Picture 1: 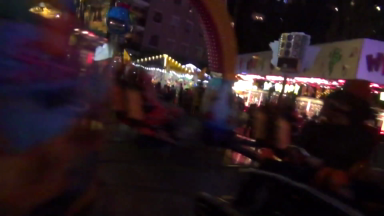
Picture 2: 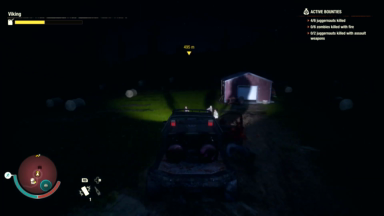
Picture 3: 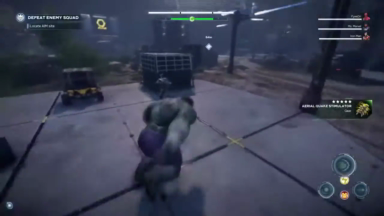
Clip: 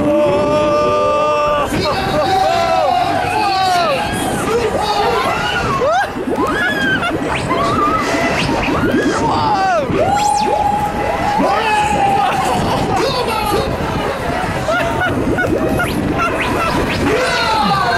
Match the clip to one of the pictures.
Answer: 1